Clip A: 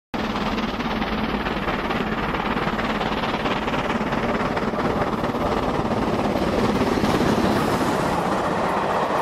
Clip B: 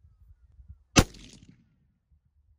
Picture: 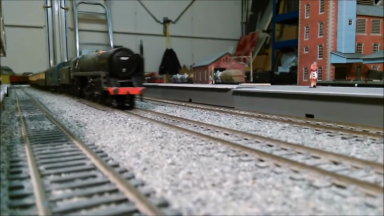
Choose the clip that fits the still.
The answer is A